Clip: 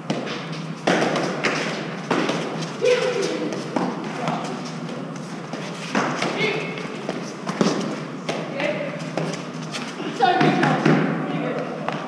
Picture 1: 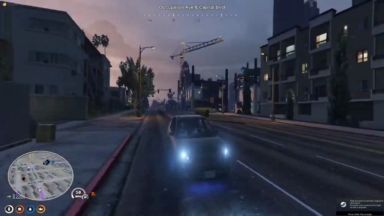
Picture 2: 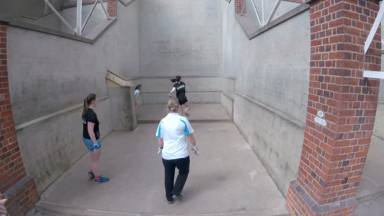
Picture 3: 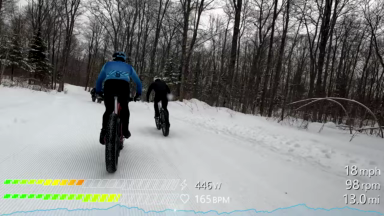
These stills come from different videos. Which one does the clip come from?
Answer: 2